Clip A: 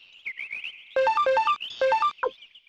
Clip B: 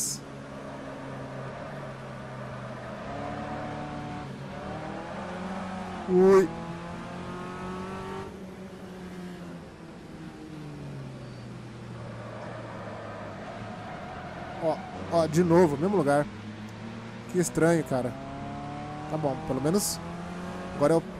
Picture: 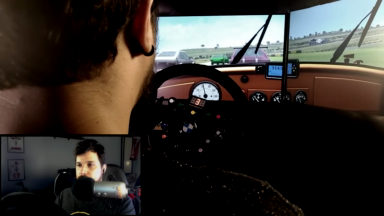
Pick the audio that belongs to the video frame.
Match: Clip B